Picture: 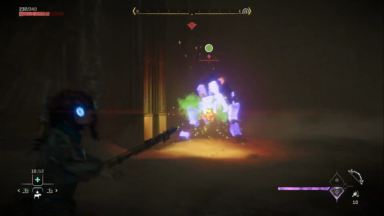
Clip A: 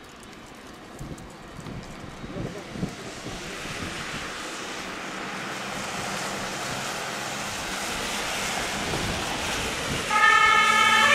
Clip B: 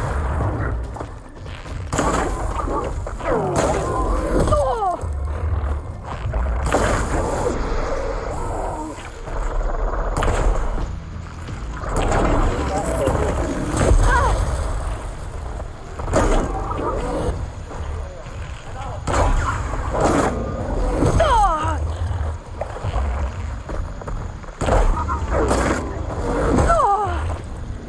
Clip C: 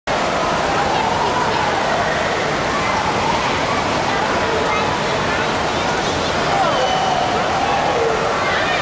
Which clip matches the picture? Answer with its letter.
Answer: B